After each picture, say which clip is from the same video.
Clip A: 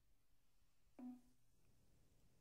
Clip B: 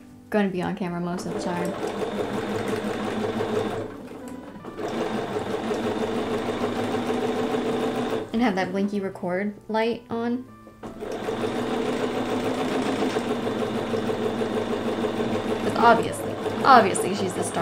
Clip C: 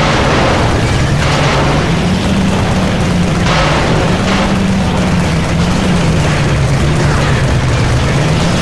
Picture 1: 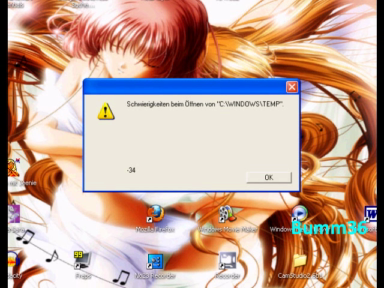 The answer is A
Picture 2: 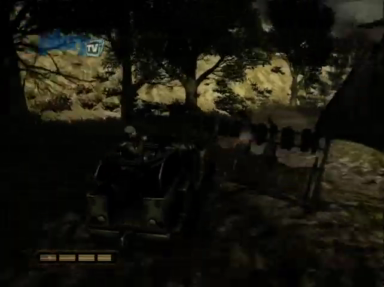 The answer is C